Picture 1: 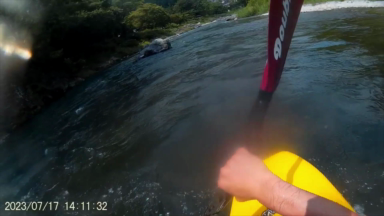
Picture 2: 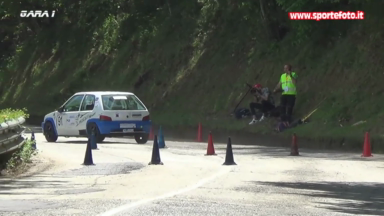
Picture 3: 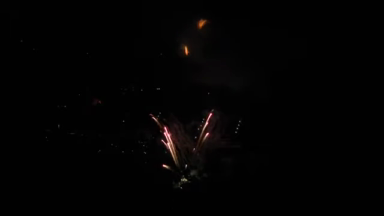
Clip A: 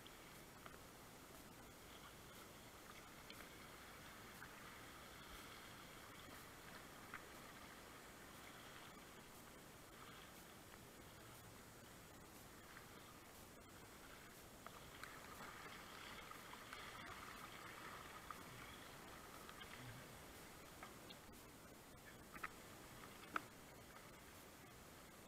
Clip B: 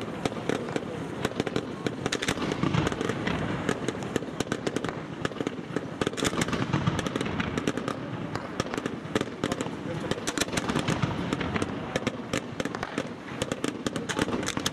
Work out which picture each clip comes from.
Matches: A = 1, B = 3